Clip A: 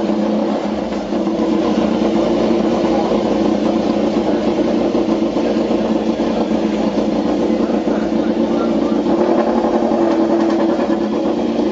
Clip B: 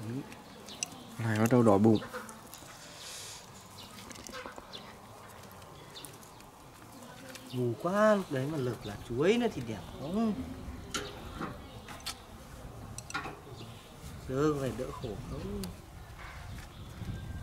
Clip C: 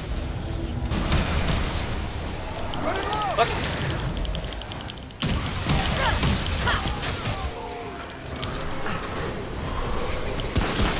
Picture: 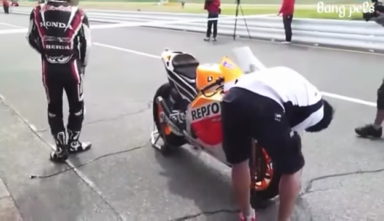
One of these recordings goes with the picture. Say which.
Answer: A